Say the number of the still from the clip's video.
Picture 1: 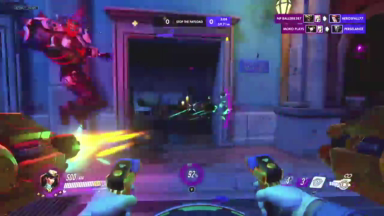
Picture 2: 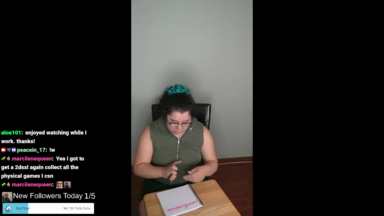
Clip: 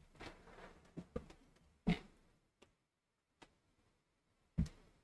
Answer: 2